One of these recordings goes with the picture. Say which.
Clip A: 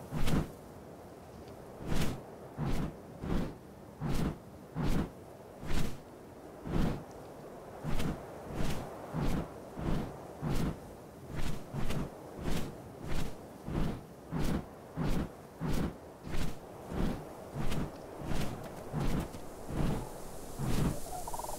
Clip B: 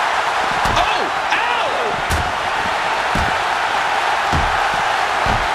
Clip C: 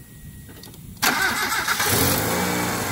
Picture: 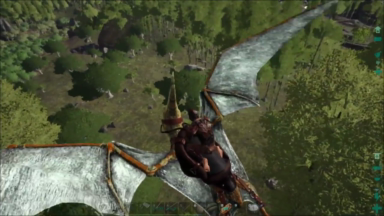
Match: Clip A